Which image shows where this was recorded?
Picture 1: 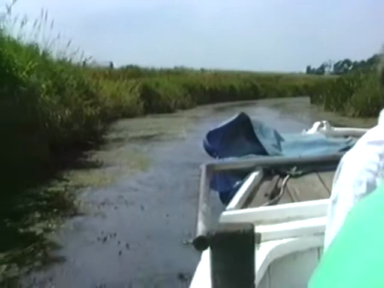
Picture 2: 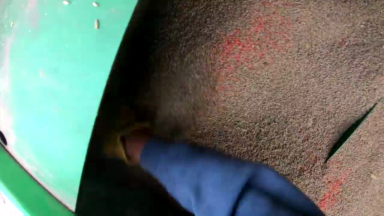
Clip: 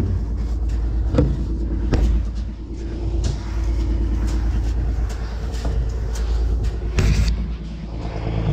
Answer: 2